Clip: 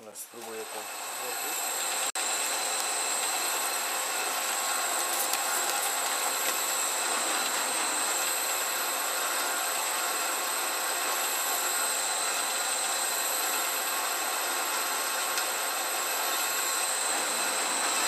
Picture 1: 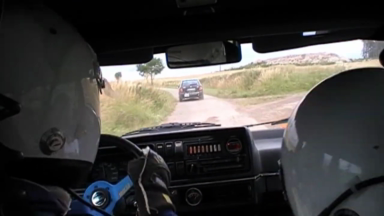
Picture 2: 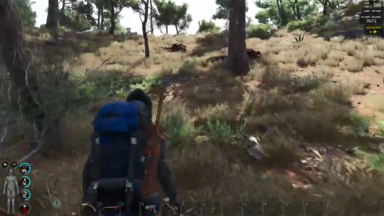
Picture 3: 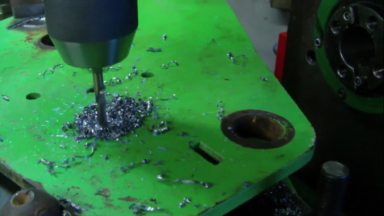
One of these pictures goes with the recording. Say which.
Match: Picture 3